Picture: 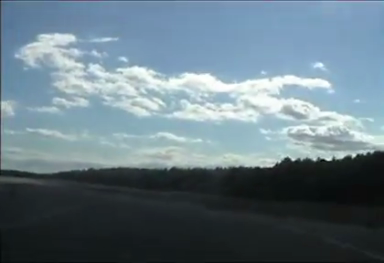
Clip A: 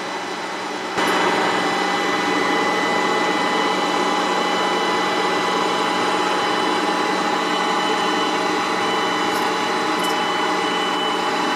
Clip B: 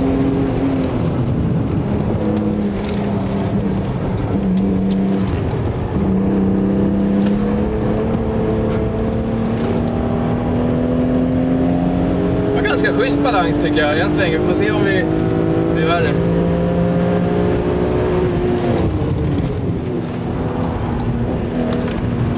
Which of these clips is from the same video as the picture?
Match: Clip B